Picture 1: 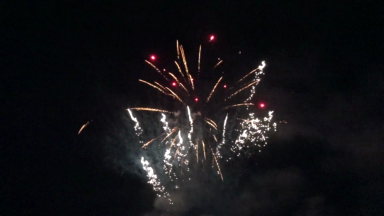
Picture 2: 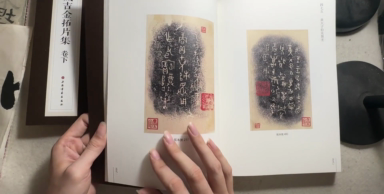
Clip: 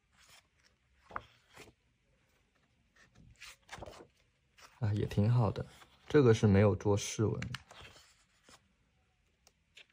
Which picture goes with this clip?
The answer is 2